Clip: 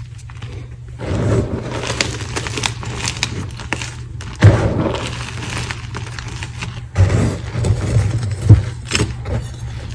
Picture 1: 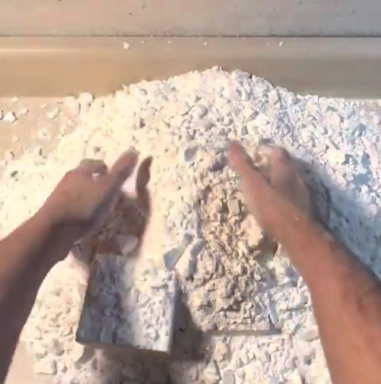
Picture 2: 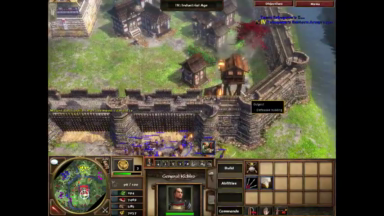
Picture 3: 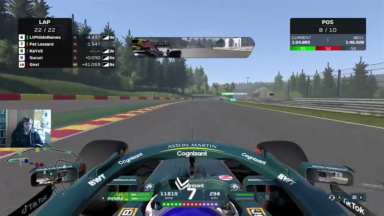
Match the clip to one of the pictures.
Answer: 1